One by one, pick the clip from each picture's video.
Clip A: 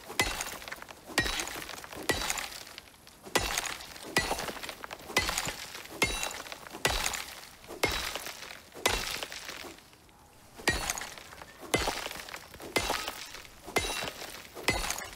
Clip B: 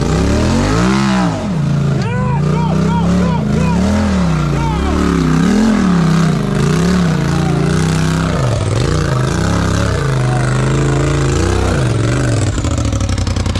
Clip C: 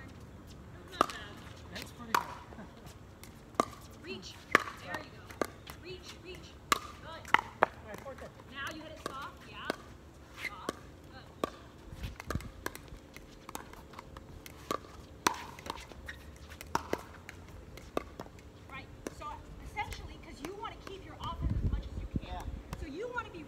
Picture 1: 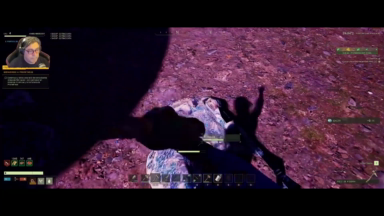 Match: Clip A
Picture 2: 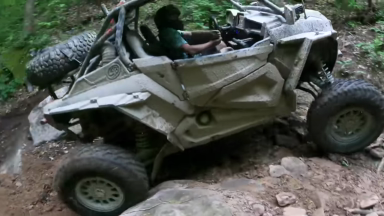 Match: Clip B